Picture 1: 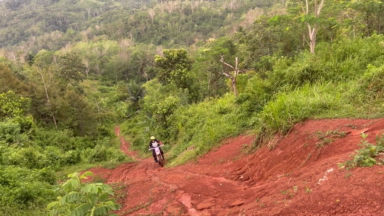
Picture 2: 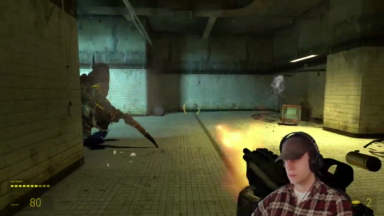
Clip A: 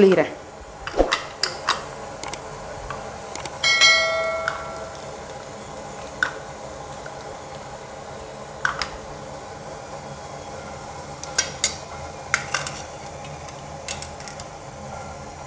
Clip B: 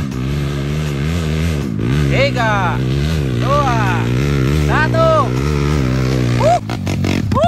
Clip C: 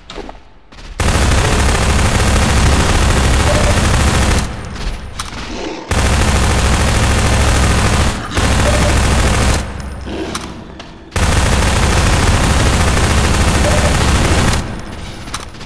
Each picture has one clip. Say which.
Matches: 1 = B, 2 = C